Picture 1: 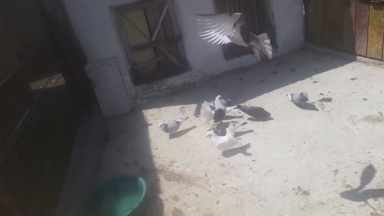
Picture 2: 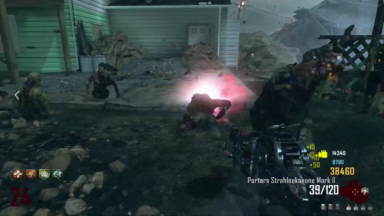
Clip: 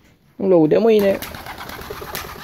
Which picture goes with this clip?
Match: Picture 1